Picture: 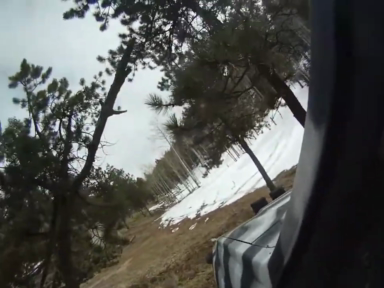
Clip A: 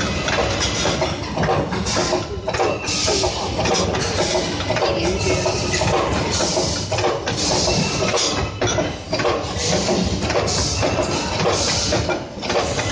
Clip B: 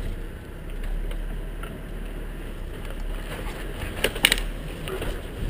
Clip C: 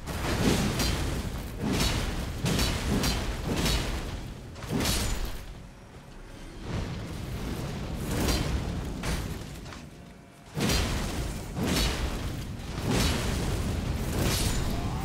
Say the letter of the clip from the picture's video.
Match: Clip B